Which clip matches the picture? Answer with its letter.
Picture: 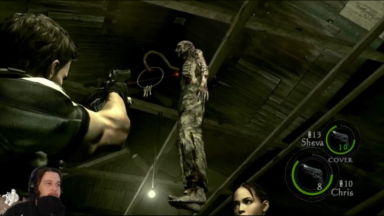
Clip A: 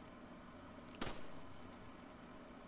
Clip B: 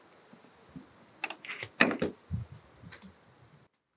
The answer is A